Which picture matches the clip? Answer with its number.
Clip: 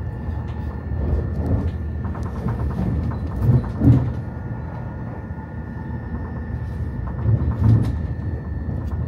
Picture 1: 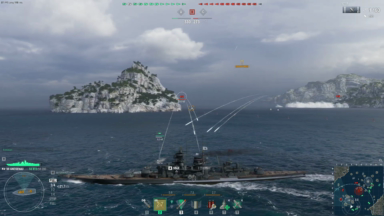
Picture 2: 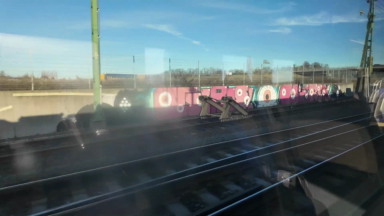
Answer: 2